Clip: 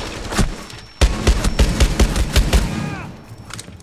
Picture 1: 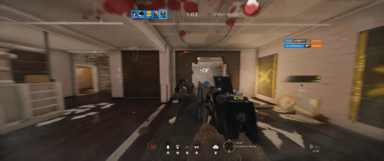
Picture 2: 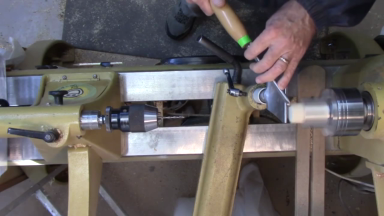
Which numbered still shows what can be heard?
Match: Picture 1